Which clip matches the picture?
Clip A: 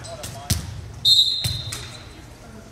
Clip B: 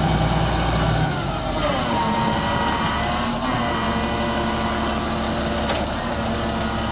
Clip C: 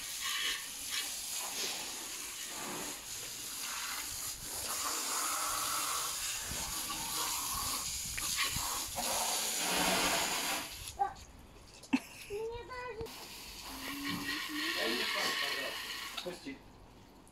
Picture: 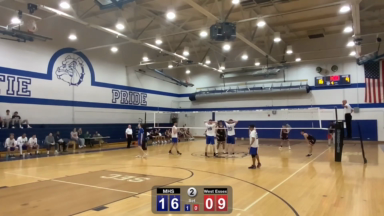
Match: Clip A